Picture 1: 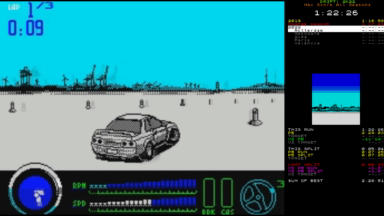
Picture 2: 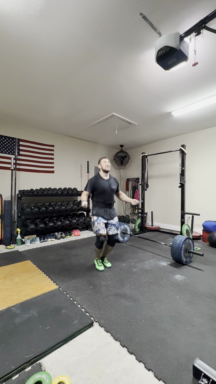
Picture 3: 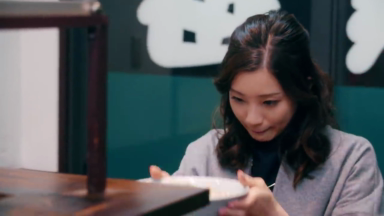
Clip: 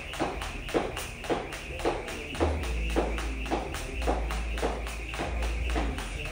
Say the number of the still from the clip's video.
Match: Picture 2